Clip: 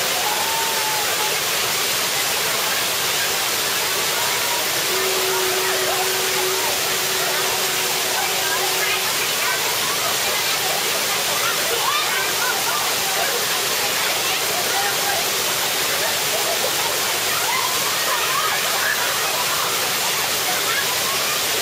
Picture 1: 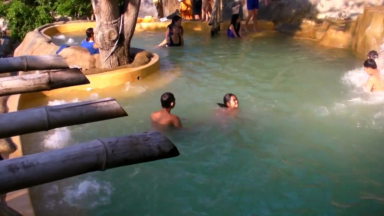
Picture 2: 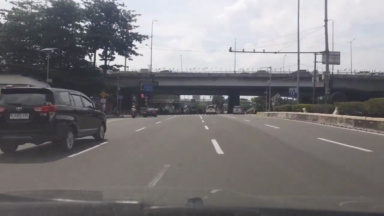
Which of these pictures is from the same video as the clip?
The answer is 1